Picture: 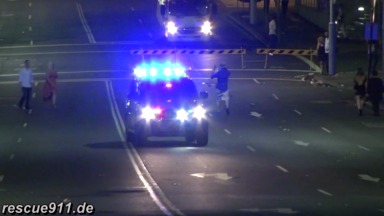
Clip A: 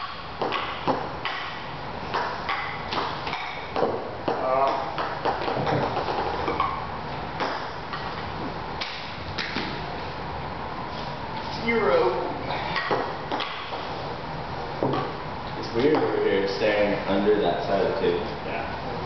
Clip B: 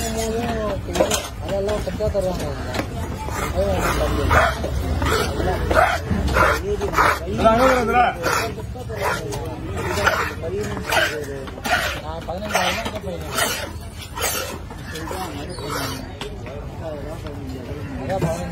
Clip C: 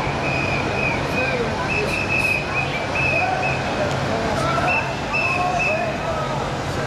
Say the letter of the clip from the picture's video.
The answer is C